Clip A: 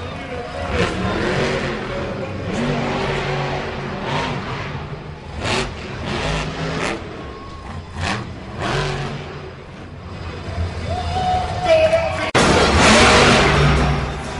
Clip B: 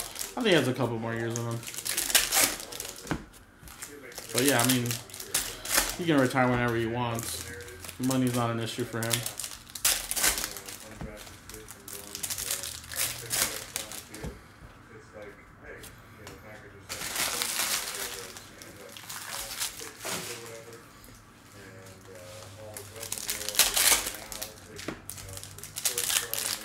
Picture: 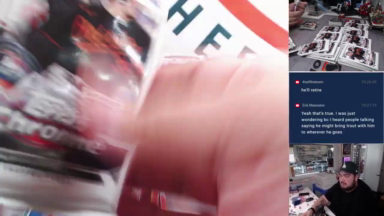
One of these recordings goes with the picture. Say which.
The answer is B